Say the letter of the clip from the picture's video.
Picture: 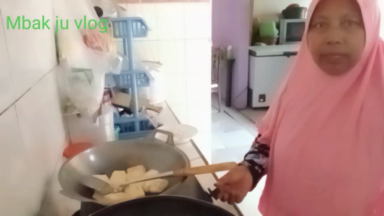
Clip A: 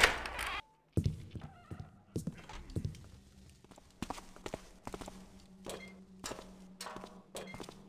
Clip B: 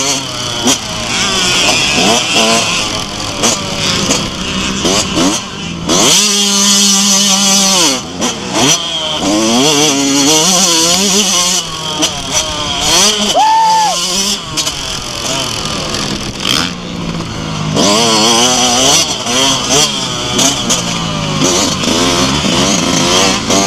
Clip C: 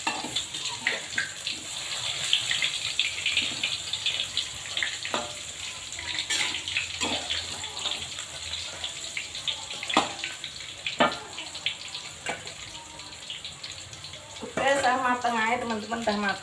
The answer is C